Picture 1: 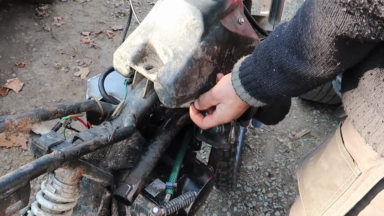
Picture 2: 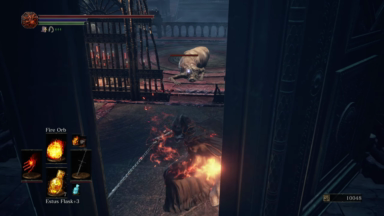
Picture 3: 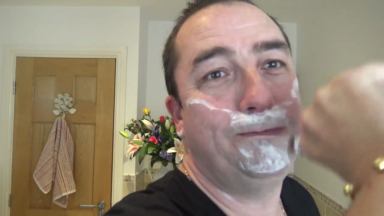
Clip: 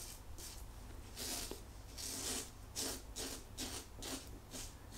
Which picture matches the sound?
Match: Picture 3